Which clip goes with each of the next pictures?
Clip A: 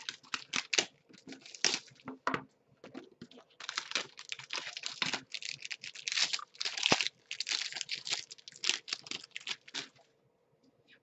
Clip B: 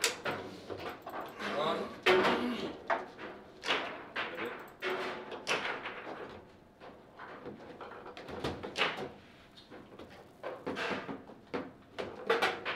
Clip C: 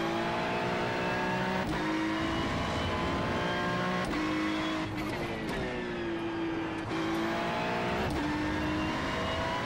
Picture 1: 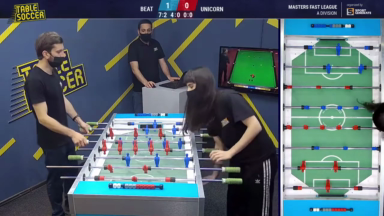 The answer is B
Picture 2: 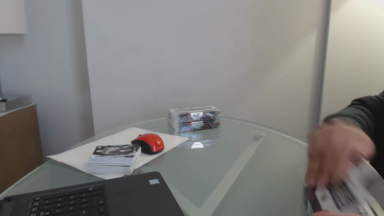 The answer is A